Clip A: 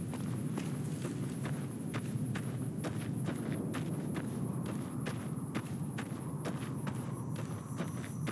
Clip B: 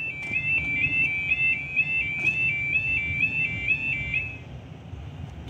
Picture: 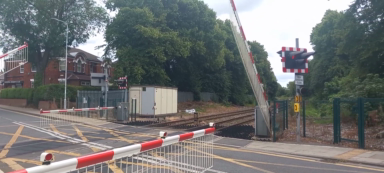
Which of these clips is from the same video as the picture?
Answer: B